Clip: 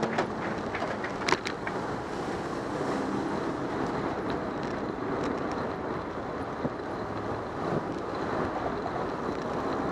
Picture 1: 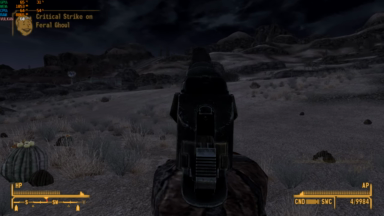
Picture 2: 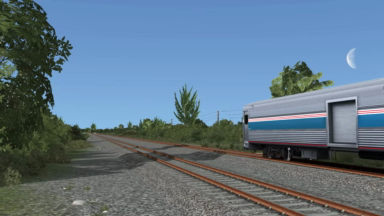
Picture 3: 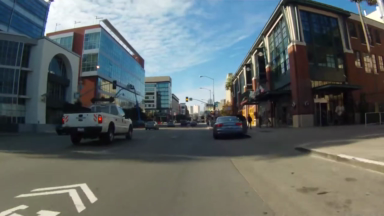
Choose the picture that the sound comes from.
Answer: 3